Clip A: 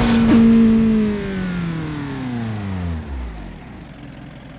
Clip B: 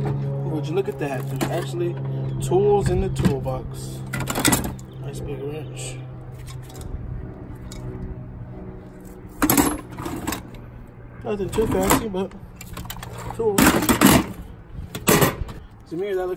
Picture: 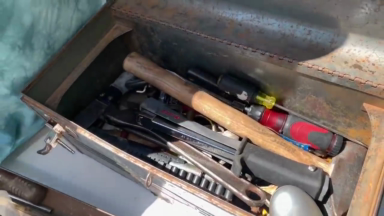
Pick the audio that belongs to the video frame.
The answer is B